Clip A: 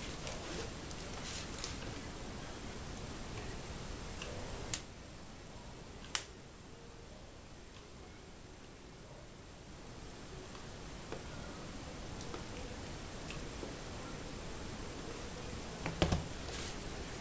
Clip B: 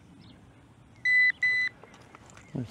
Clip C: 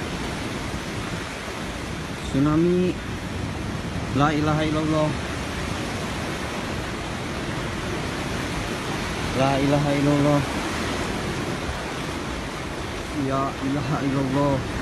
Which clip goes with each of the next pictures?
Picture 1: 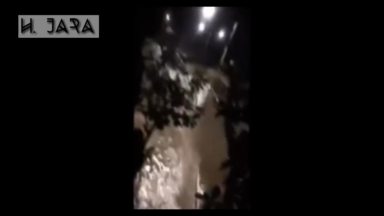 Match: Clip C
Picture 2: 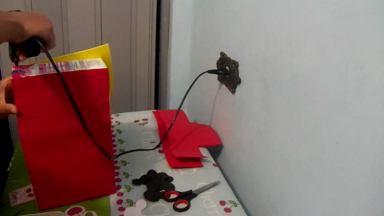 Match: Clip A